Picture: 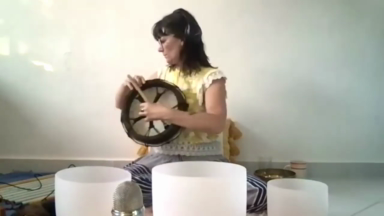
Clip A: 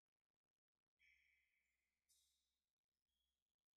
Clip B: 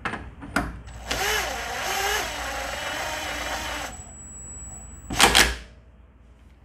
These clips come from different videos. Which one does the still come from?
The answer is A